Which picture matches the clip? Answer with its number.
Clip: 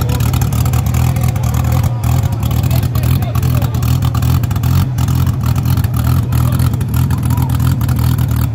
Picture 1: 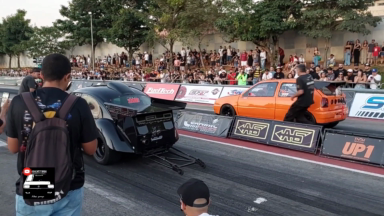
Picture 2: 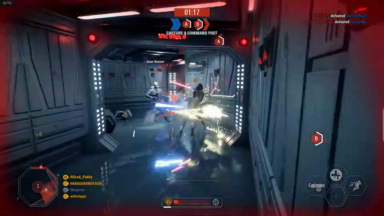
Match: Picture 1